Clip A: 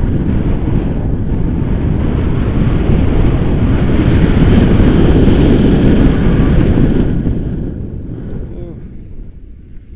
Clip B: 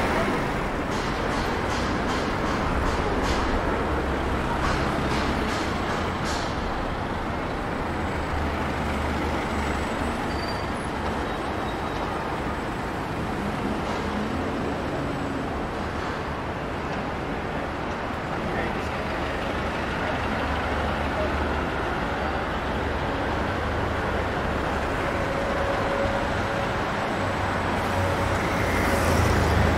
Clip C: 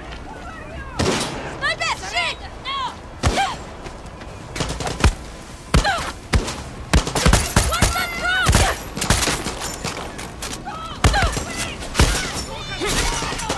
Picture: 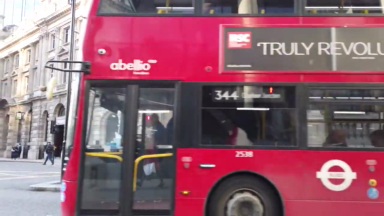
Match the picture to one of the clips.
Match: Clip B